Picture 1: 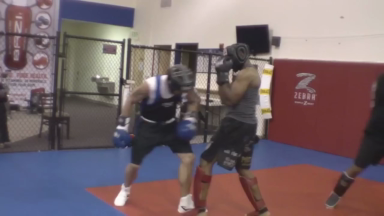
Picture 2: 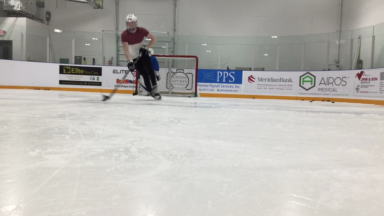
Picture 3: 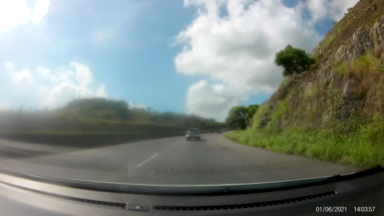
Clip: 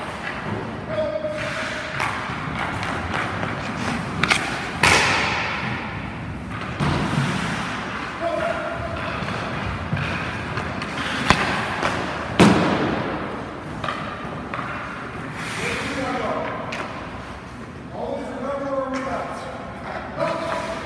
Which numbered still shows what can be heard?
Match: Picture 2